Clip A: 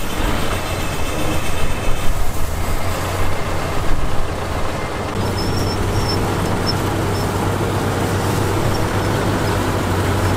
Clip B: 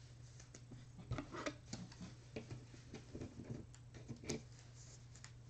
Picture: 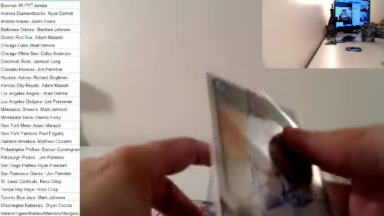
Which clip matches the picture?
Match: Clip B